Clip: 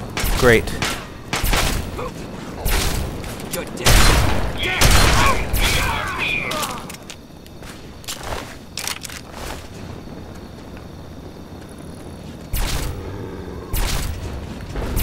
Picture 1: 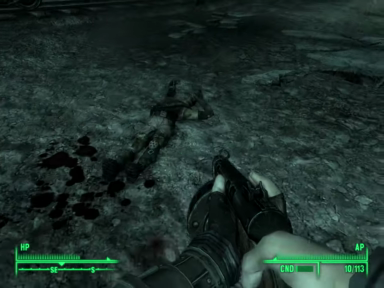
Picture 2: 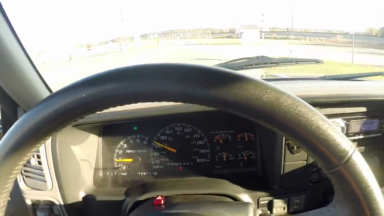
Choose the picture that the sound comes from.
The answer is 1